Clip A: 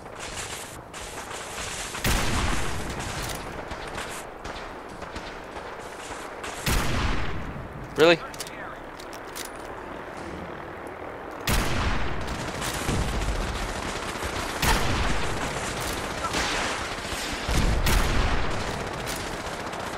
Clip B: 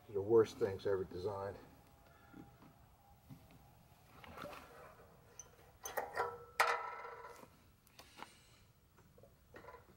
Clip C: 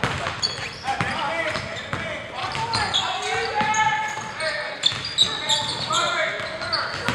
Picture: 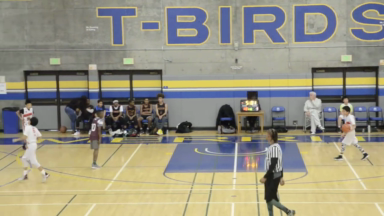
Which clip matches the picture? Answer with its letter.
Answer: C